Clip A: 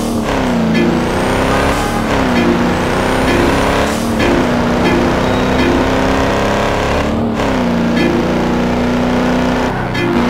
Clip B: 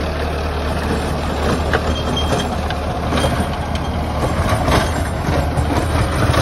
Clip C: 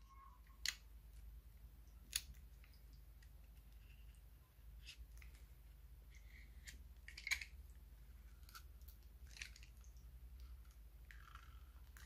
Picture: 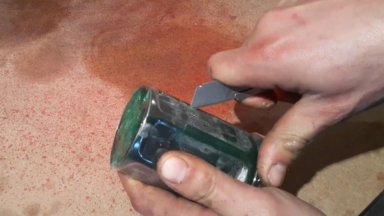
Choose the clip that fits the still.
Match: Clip C